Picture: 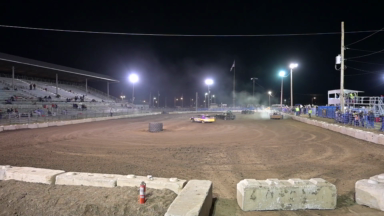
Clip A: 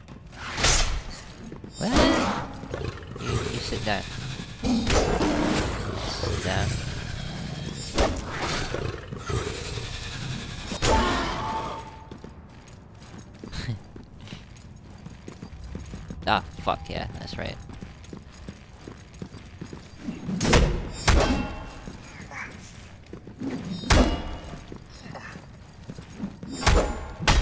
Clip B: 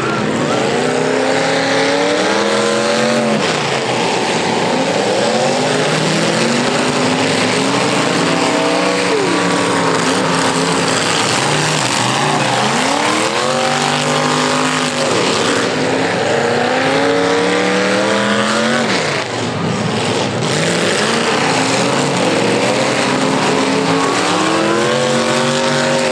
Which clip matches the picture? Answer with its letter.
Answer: B